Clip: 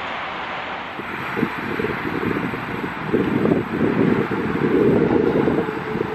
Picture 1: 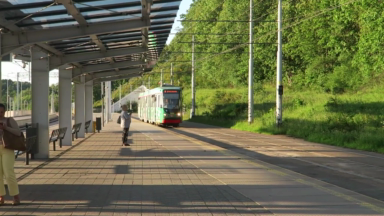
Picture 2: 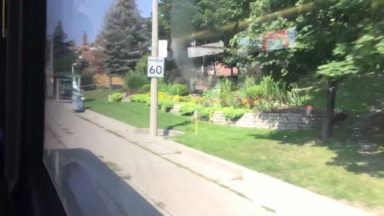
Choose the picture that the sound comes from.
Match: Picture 1